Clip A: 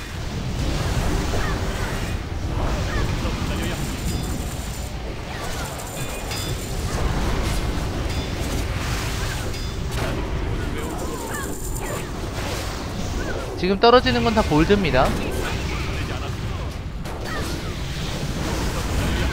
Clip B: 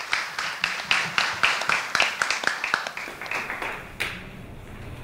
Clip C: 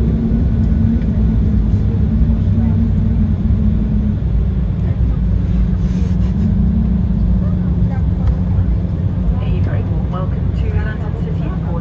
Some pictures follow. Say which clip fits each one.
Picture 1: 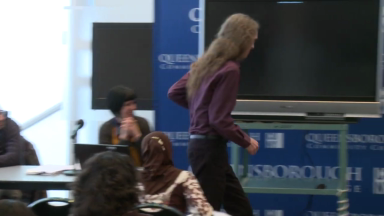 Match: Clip B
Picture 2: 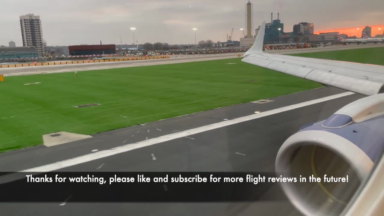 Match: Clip C